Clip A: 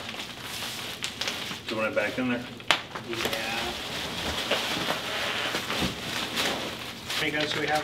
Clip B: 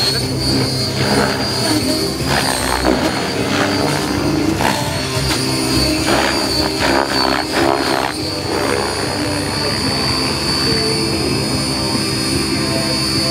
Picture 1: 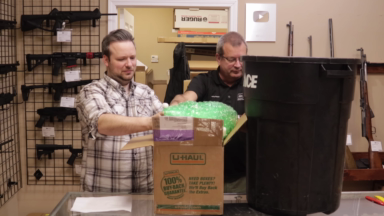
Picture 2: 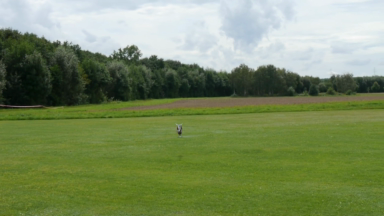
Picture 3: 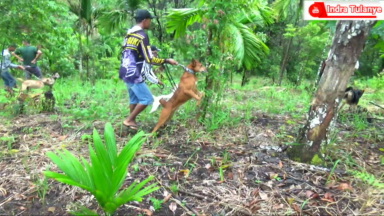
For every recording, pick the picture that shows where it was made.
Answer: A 1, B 2